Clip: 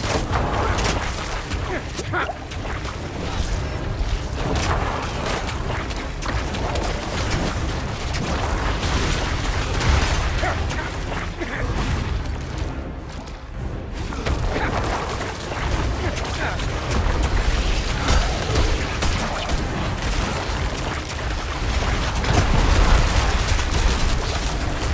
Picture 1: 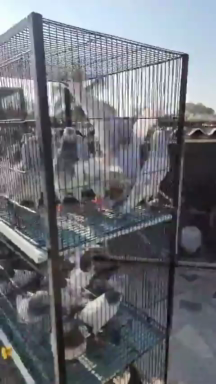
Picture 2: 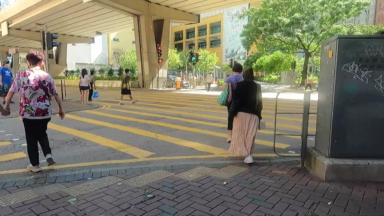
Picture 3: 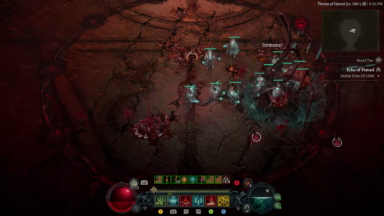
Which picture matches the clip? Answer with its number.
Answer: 3